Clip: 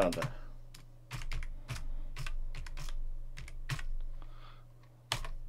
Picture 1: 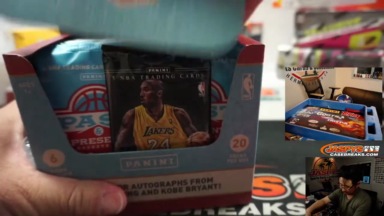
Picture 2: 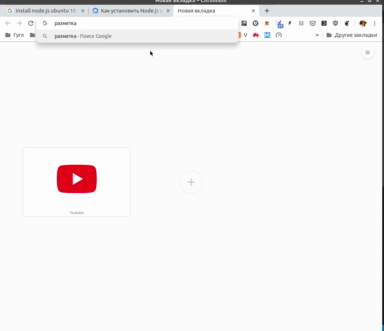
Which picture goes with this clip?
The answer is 2